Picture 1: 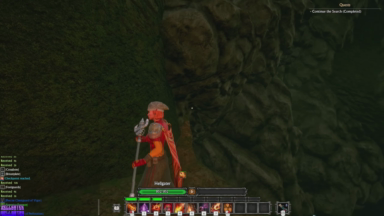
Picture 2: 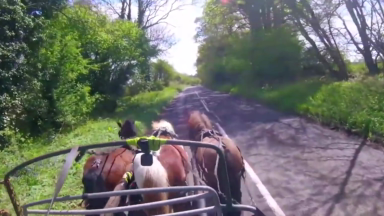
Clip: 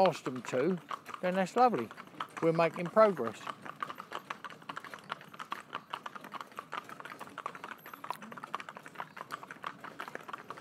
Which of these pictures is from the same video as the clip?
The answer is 2